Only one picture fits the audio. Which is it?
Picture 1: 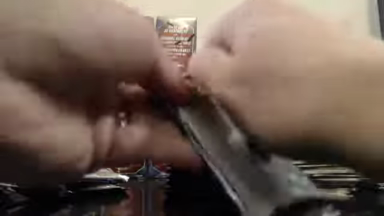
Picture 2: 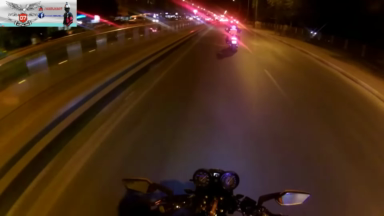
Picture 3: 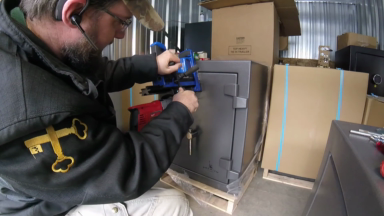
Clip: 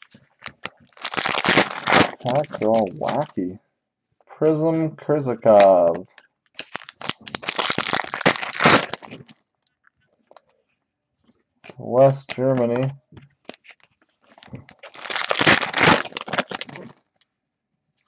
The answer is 1